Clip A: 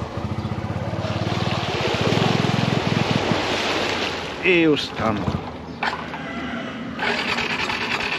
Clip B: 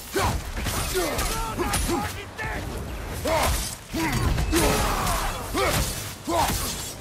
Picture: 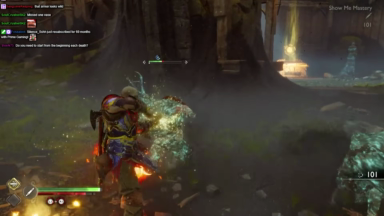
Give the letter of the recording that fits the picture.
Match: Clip B